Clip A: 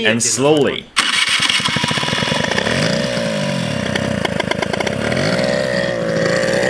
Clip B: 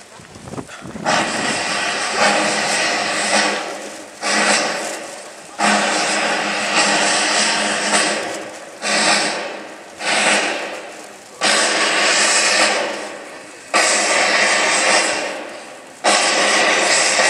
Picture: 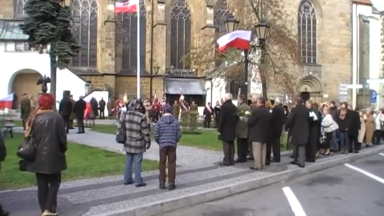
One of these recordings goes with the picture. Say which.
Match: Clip B